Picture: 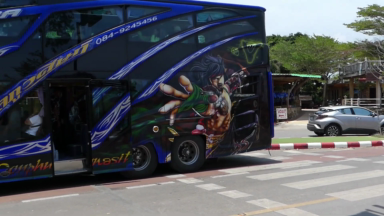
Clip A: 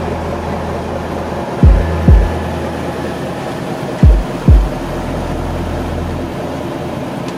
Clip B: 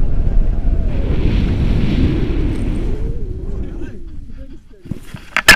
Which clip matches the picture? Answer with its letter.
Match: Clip A